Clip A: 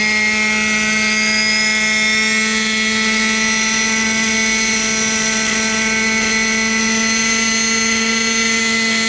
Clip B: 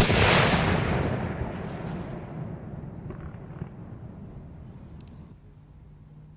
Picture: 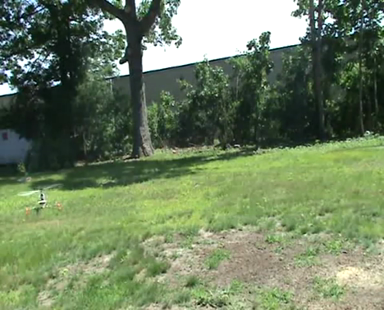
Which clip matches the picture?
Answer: A